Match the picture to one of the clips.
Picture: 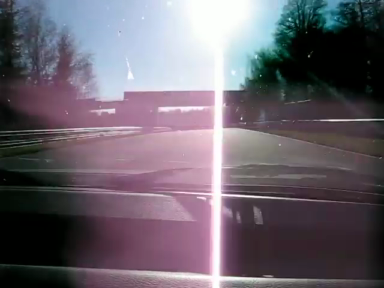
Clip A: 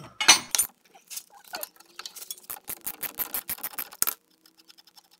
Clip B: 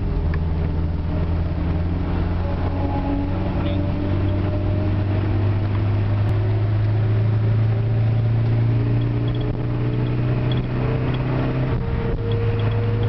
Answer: B